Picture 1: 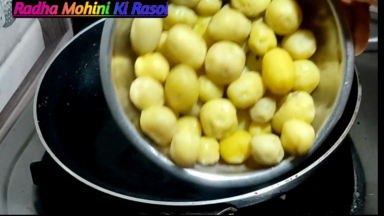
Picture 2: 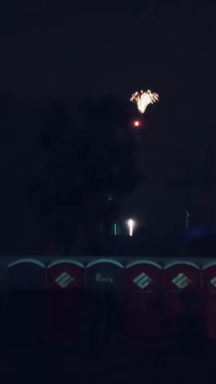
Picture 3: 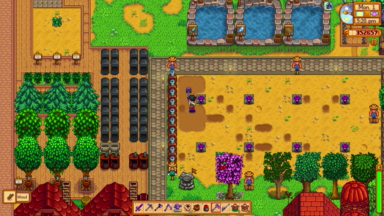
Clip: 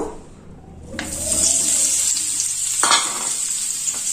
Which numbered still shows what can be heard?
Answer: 1